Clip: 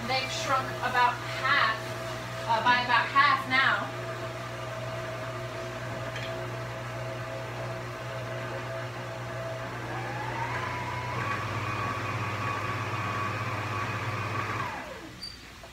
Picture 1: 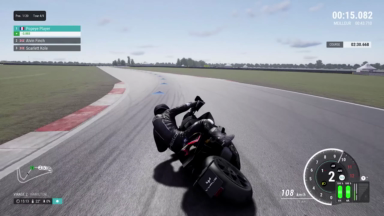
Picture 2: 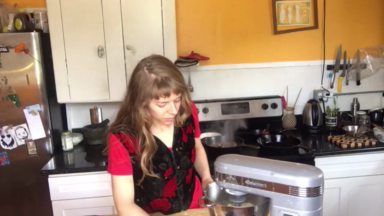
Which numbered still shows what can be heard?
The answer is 2